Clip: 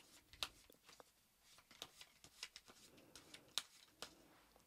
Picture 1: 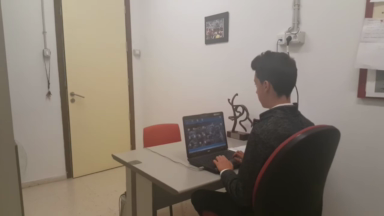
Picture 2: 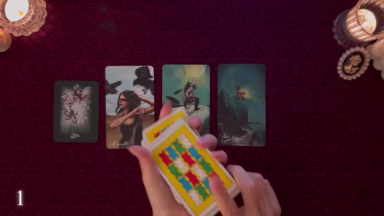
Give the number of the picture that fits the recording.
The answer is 2